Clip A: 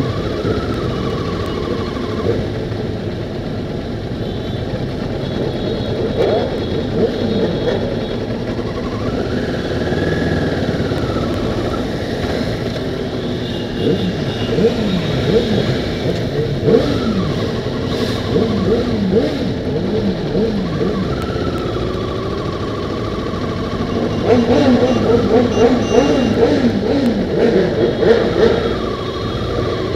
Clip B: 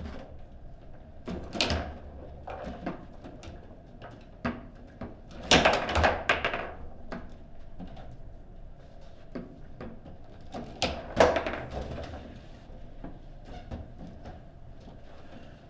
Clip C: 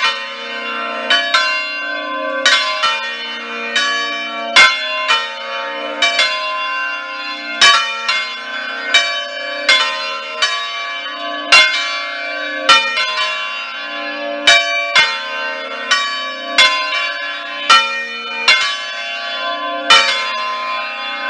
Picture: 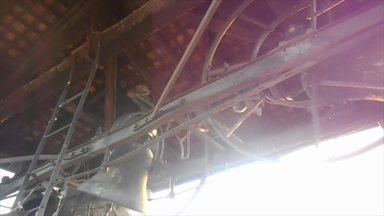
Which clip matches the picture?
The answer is C